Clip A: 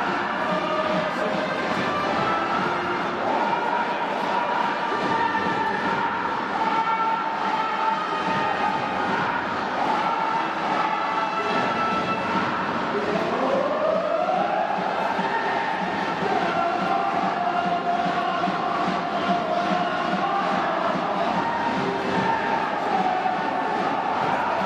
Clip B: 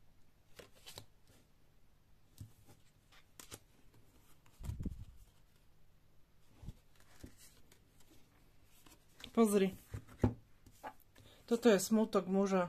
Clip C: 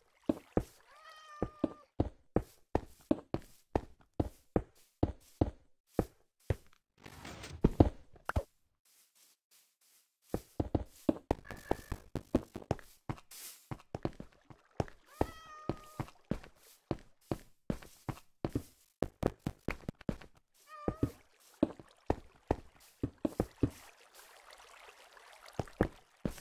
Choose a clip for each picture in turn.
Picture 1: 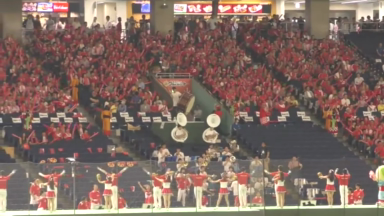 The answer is A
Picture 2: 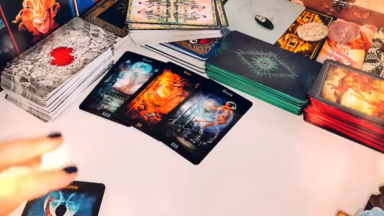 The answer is B